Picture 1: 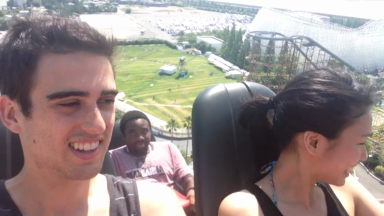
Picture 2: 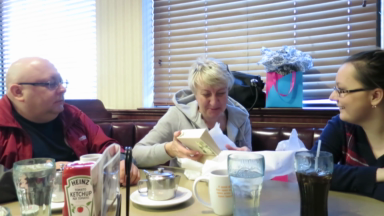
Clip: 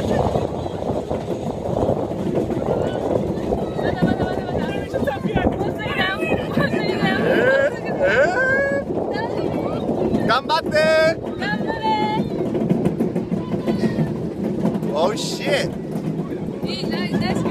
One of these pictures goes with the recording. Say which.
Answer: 1